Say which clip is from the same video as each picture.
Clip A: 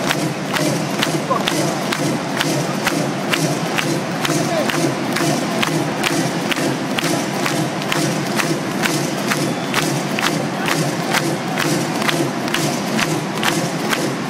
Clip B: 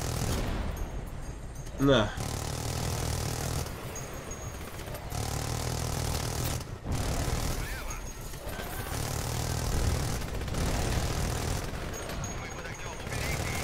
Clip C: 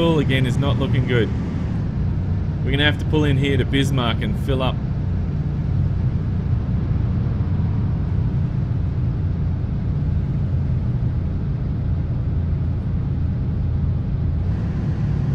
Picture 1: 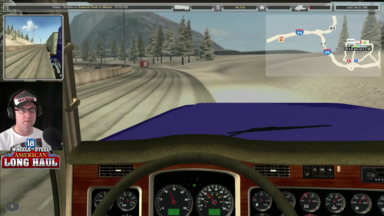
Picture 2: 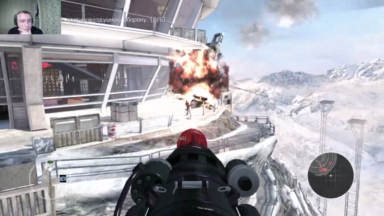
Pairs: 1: C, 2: B